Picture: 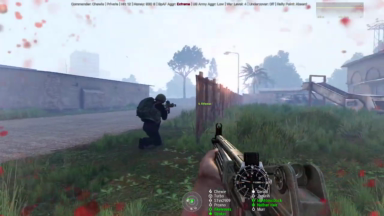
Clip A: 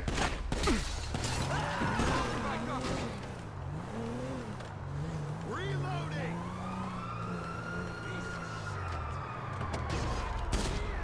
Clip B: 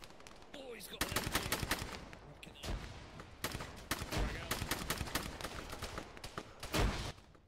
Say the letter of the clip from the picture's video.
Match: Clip B